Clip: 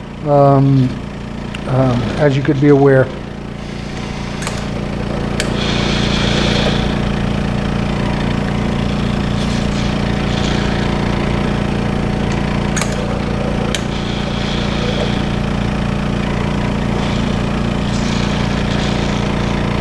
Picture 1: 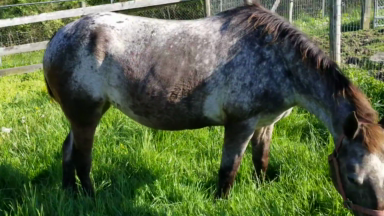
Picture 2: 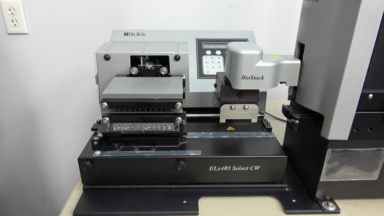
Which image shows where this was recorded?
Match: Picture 2